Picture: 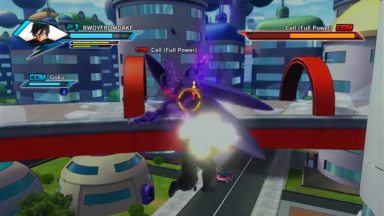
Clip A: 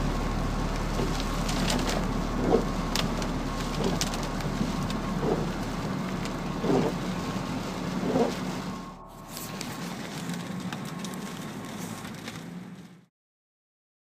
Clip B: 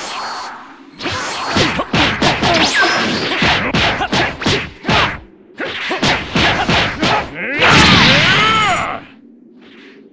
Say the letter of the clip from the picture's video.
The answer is B